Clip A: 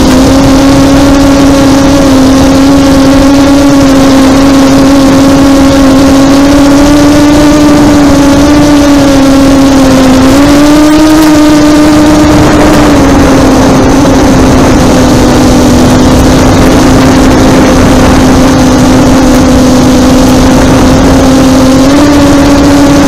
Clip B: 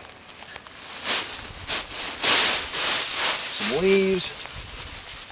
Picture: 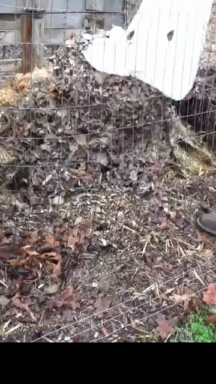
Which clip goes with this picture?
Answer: B